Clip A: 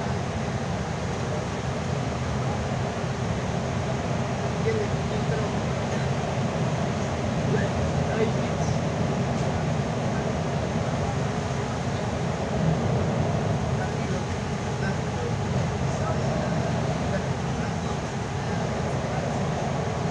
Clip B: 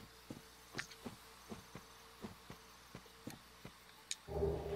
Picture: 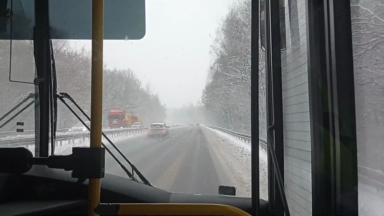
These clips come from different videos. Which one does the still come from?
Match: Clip A